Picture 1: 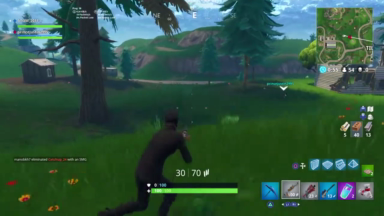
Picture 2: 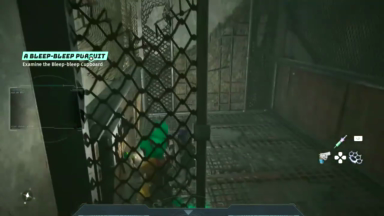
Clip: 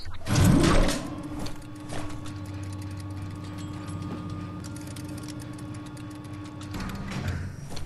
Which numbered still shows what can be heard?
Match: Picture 2